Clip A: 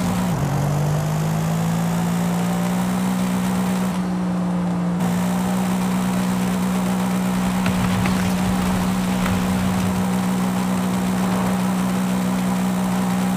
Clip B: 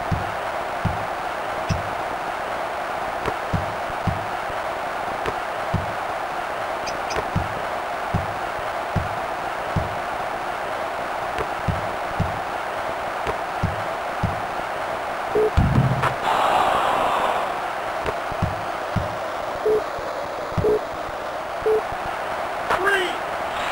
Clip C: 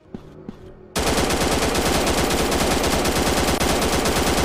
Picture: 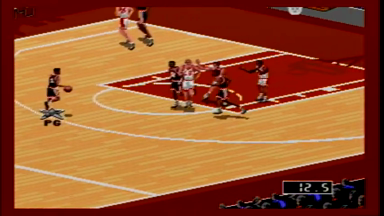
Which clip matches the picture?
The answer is B